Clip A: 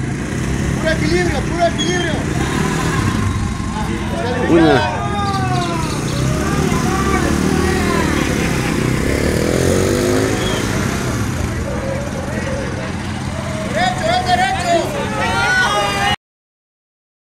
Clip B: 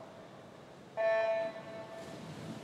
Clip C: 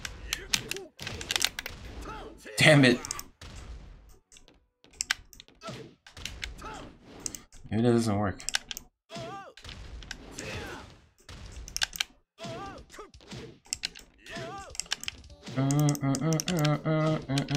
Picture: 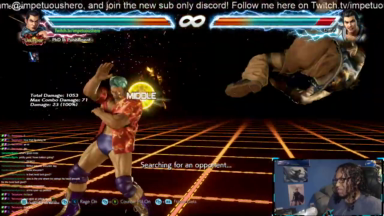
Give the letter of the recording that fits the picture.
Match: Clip C